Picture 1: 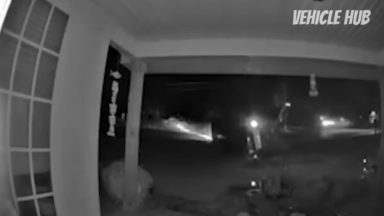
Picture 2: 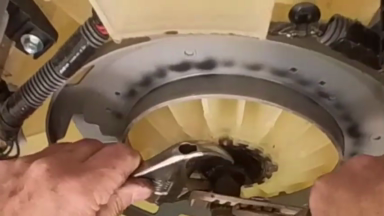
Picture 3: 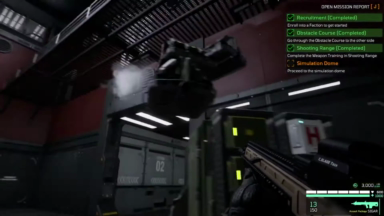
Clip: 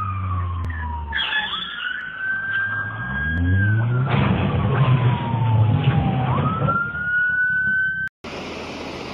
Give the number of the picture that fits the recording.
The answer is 1